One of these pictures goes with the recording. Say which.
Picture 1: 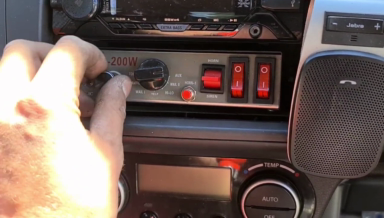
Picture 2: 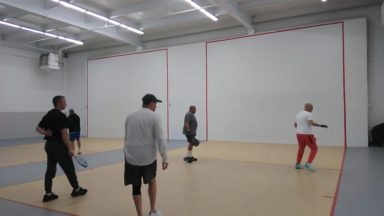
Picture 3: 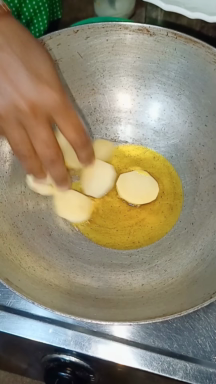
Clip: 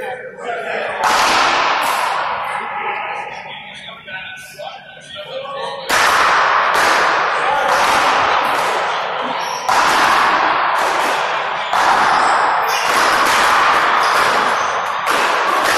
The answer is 2